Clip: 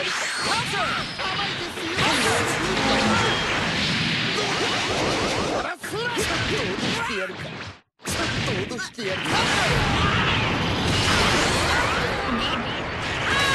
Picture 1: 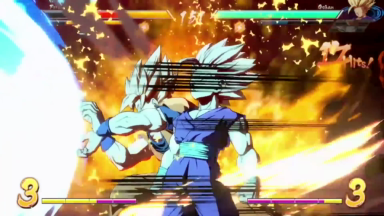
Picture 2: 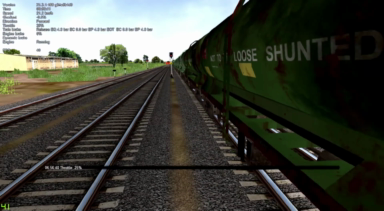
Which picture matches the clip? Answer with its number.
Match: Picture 1